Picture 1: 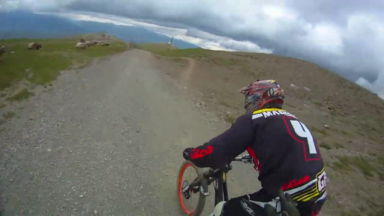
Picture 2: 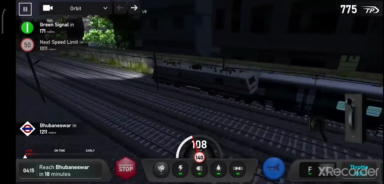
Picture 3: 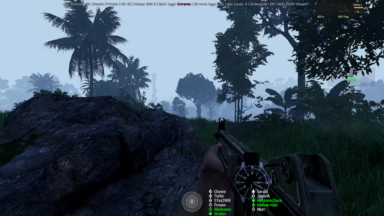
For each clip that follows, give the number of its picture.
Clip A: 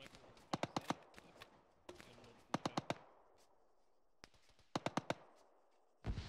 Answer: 3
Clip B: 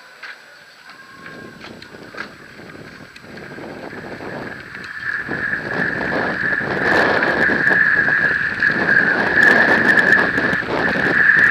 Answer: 1